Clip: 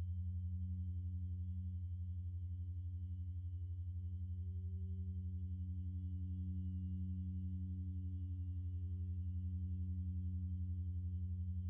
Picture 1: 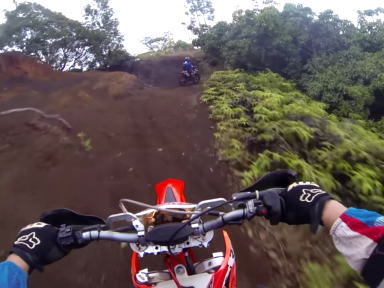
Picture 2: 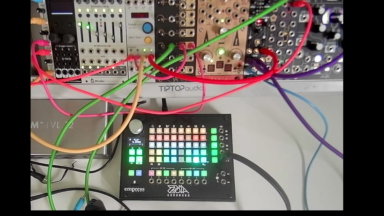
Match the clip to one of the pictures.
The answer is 2